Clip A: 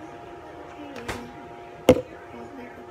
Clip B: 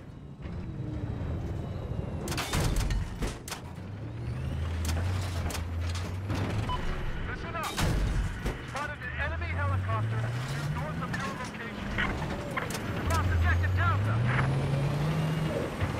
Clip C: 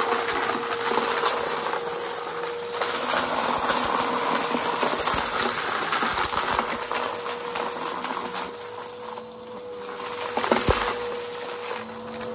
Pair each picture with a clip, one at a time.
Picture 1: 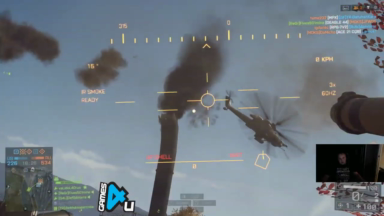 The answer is B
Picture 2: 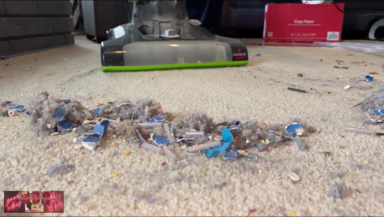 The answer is C